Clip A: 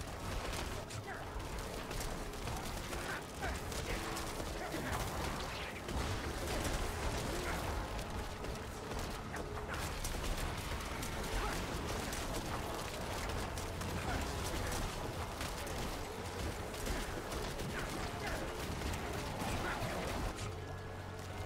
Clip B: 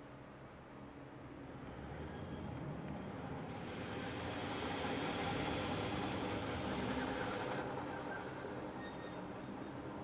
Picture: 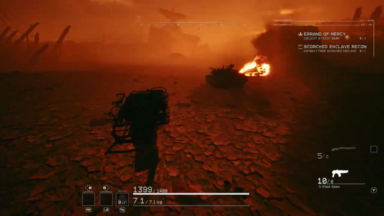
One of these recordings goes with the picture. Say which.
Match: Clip B